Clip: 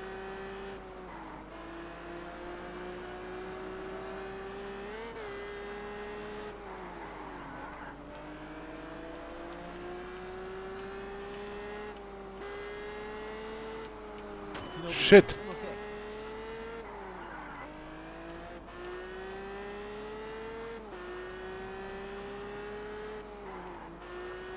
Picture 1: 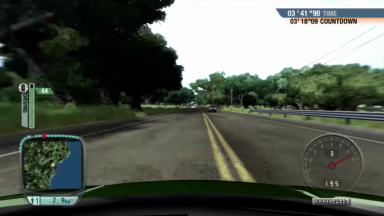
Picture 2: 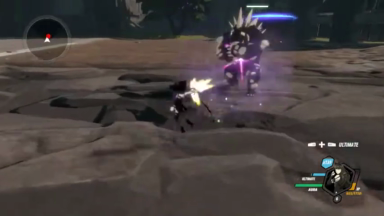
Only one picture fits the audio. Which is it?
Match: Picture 1